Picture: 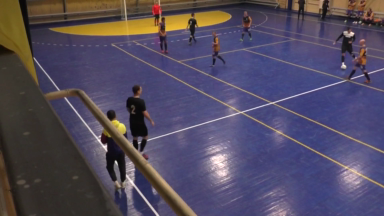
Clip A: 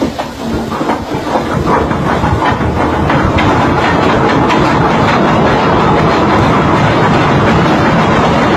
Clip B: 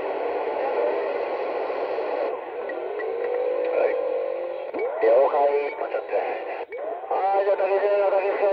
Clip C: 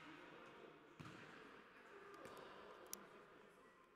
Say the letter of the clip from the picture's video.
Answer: C